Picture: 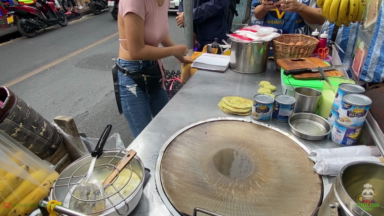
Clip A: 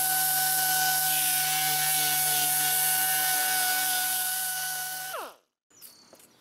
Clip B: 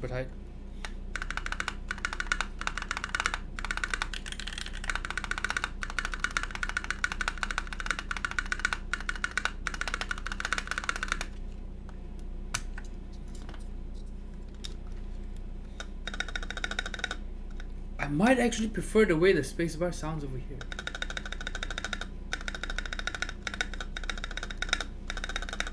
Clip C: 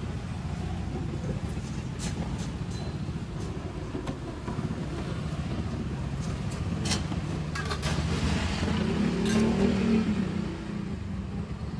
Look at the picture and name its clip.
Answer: C